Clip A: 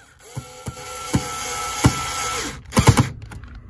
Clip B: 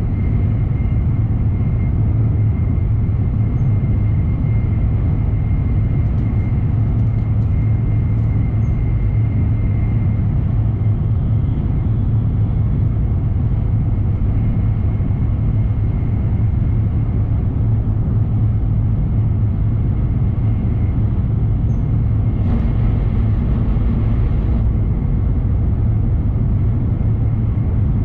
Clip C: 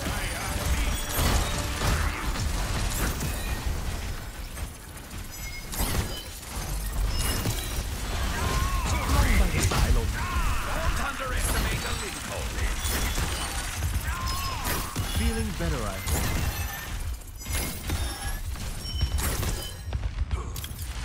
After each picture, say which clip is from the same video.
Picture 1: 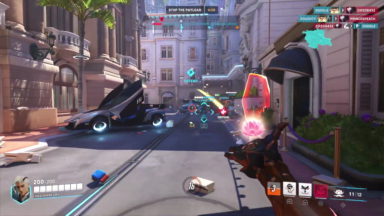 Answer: C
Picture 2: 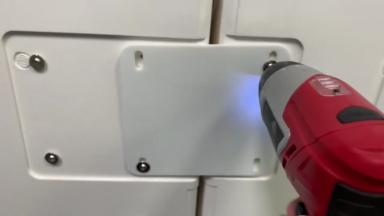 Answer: A